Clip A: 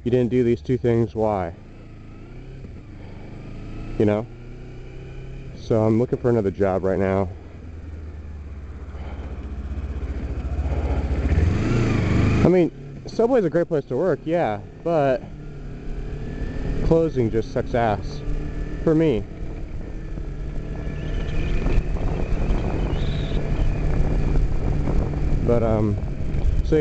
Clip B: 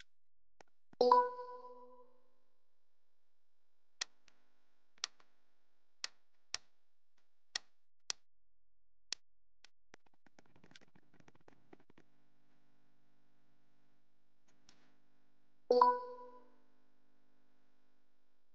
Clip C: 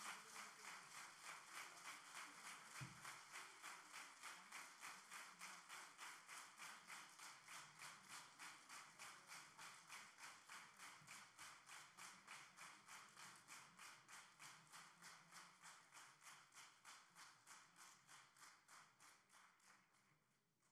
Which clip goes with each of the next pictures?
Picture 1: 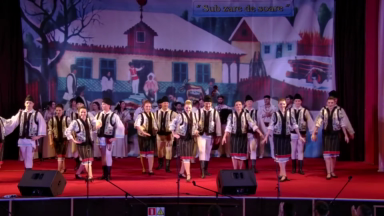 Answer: C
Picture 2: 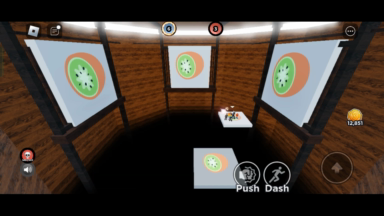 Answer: B